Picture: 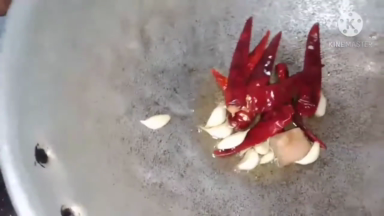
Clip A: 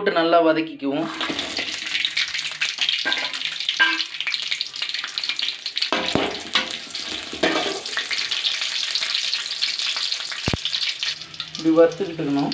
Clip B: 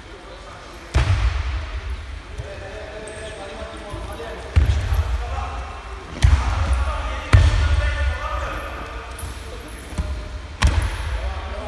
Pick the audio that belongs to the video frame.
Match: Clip A